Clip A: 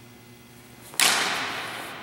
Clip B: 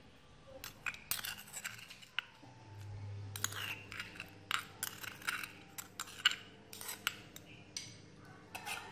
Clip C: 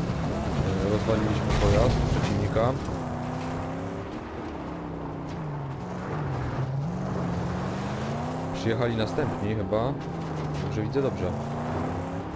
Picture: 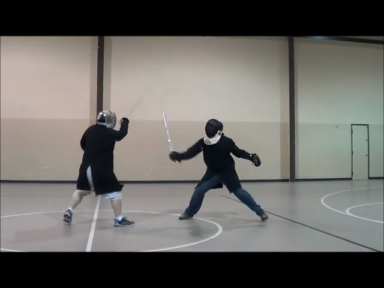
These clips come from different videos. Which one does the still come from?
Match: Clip A